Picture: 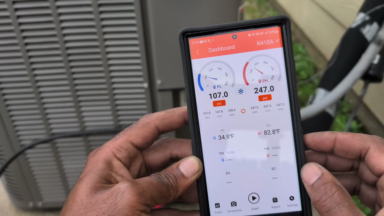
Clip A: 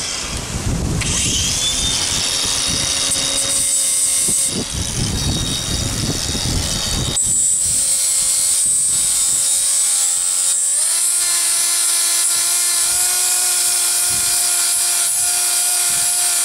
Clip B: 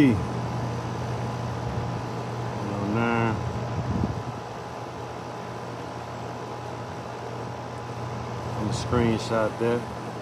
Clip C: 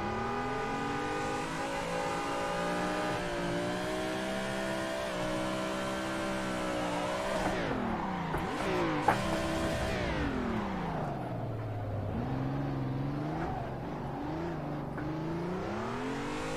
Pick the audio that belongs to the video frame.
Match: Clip B